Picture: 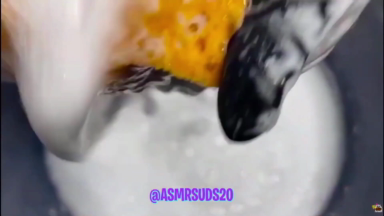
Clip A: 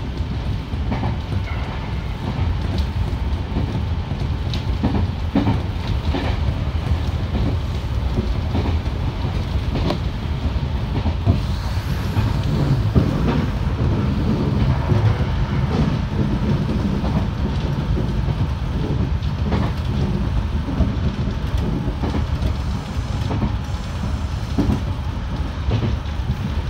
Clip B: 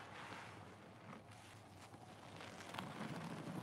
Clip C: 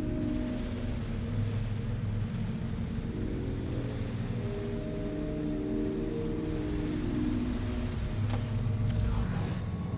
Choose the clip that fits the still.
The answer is B